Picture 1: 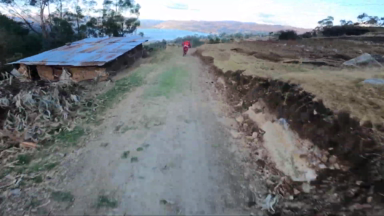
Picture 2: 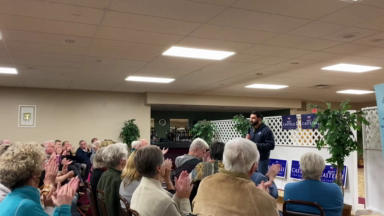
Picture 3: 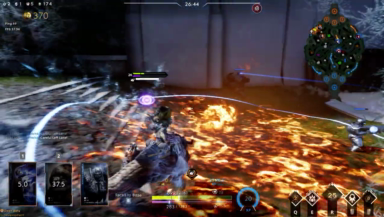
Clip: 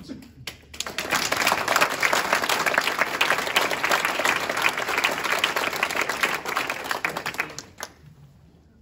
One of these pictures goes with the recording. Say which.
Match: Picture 2